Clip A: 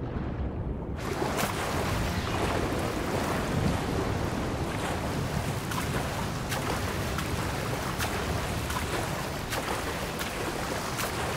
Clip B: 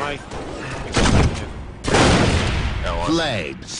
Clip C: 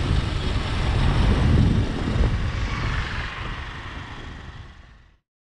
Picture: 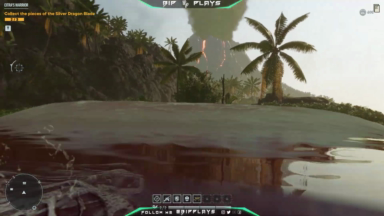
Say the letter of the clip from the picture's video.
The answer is A